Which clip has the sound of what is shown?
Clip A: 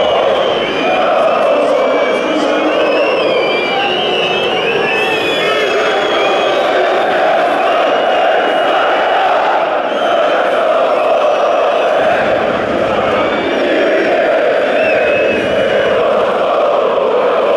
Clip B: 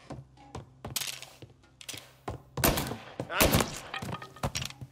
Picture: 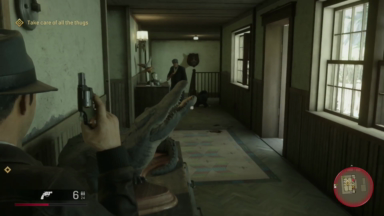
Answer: B